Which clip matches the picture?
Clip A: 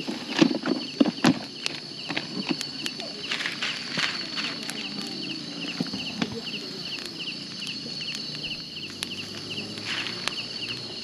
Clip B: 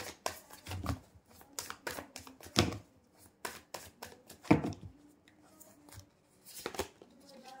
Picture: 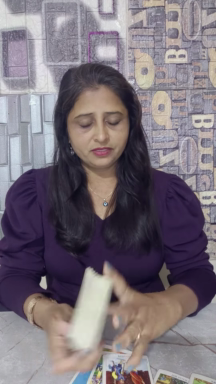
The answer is B